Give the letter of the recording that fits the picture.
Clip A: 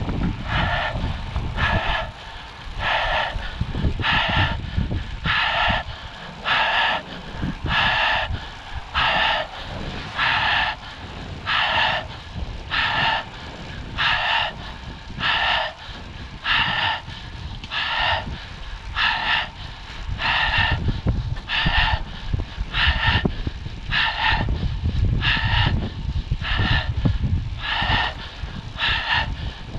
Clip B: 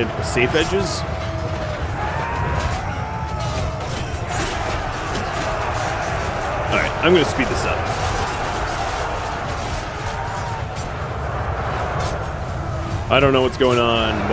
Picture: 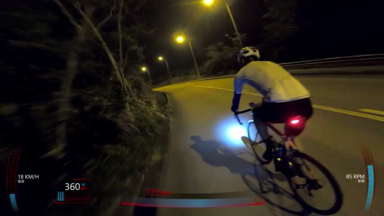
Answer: A